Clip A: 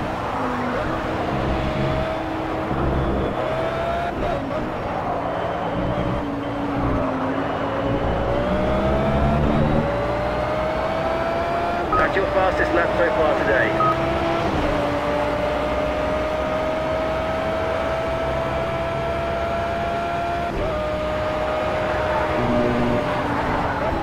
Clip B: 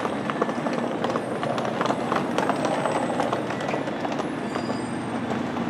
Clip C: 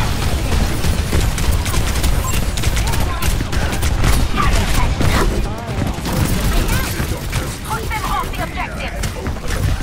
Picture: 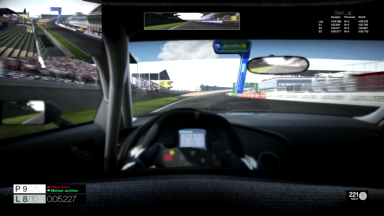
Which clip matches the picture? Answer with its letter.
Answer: A